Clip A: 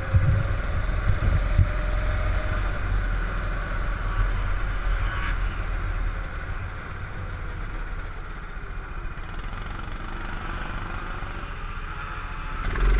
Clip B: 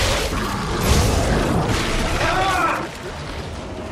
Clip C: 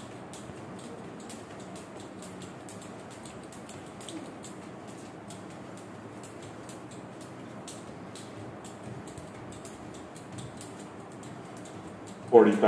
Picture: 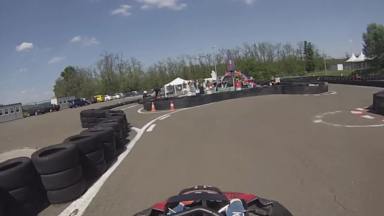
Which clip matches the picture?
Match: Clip A